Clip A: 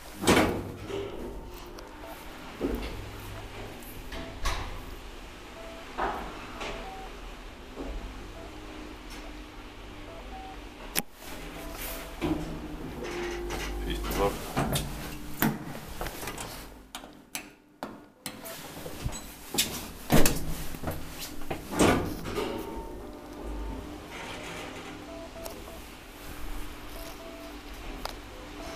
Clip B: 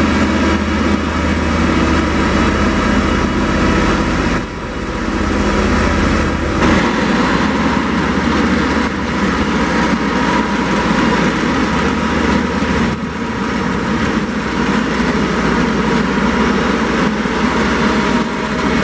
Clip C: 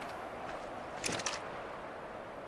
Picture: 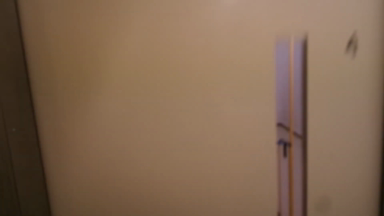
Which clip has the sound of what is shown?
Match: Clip A